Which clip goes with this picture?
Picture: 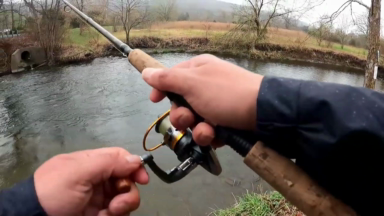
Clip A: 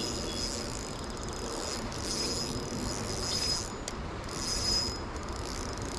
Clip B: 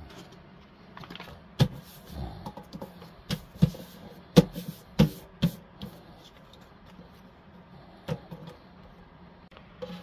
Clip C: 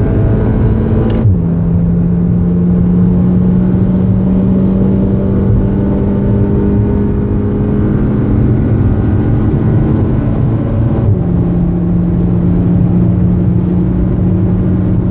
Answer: A